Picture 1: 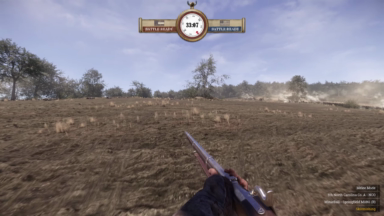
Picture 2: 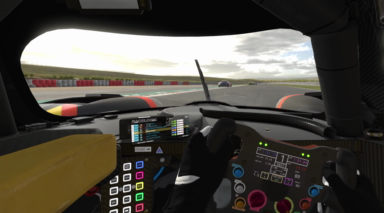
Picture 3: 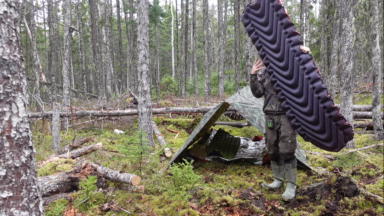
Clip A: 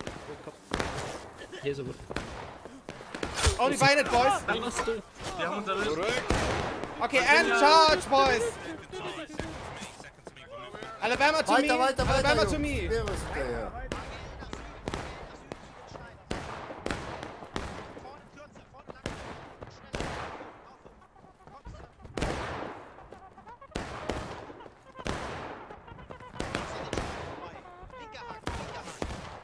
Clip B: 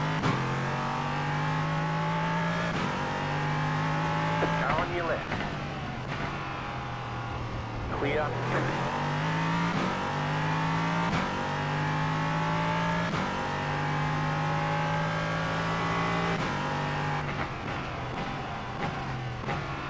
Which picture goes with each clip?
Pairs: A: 1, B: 2